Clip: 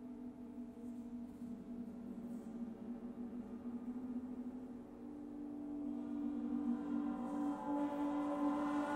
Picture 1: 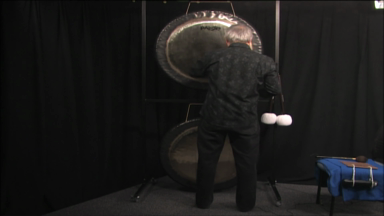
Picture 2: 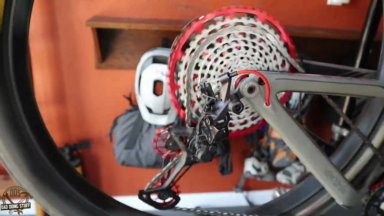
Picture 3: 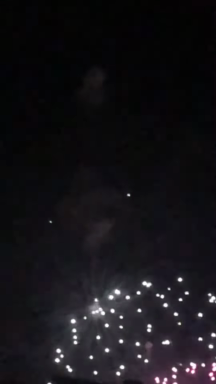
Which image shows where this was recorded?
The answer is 1